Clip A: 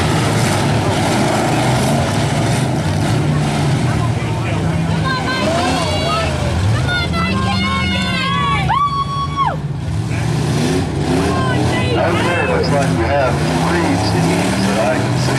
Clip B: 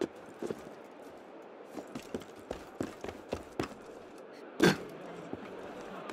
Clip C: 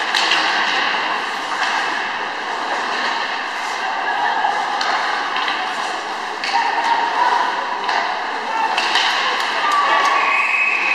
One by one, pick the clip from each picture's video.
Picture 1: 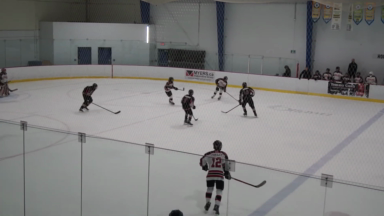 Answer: C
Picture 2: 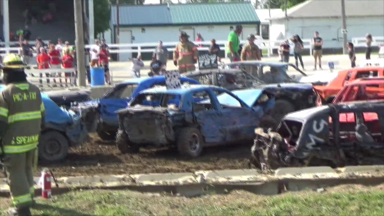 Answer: A